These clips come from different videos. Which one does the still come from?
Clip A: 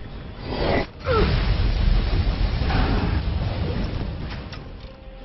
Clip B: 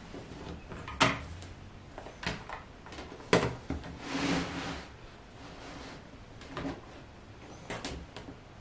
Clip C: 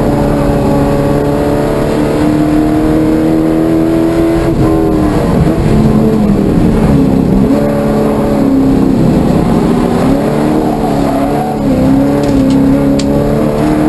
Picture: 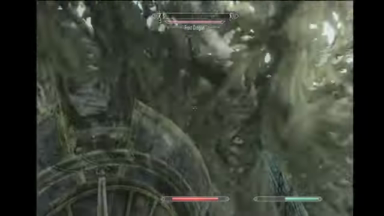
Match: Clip A